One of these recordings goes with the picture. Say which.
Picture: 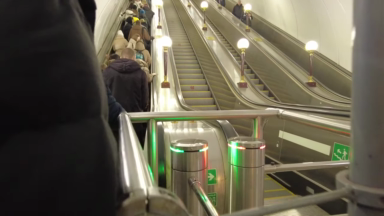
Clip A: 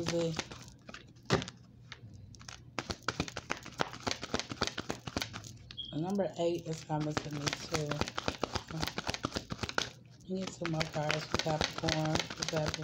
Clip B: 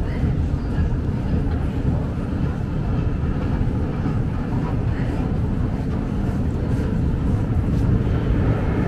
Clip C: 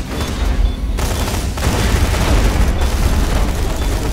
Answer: B